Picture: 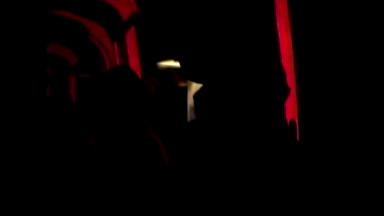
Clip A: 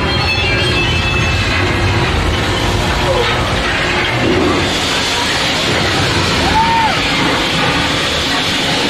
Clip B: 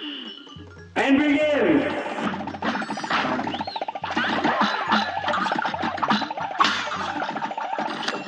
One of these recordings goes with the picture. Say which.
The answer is A